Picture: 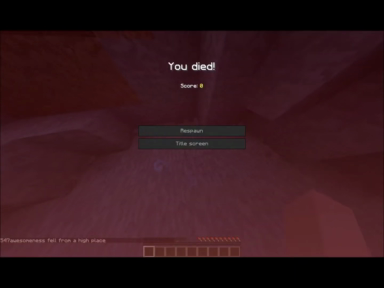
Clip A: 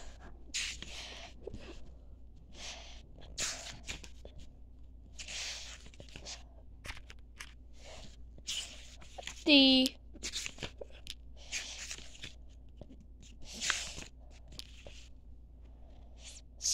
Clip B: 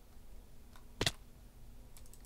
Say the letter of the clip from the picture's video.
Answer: B